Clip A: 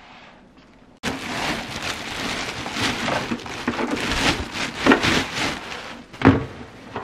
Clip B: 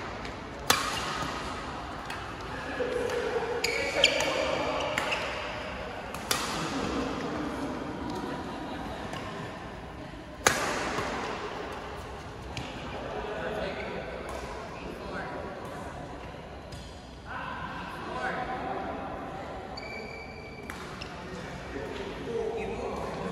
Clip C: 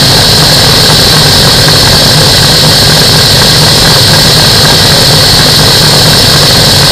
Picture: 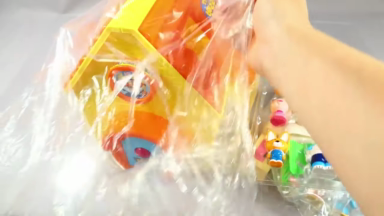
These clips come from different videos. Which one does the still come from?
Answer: A